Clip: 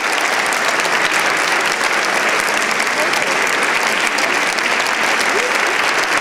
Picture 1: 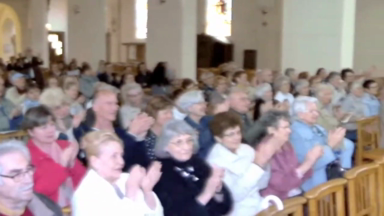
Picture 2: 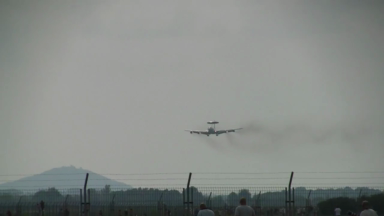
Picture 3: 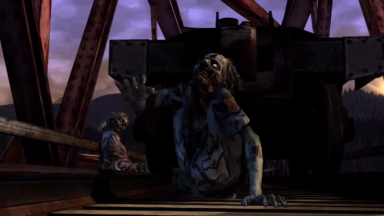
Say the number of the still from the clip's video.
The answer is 1